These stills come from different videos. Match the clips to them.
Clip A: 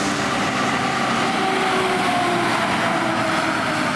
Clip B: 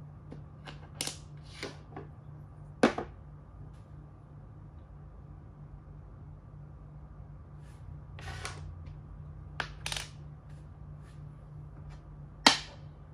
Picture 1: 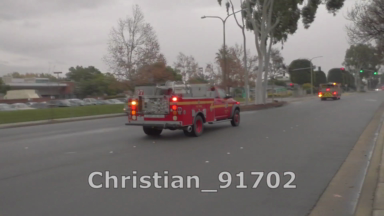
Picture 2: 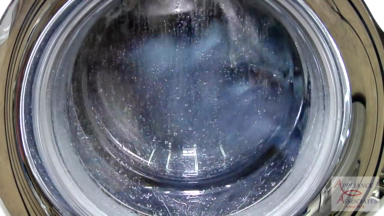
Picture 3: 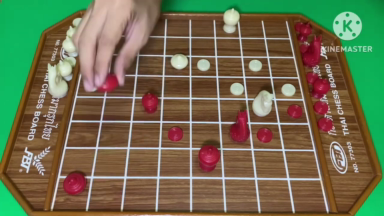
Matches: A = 1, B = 3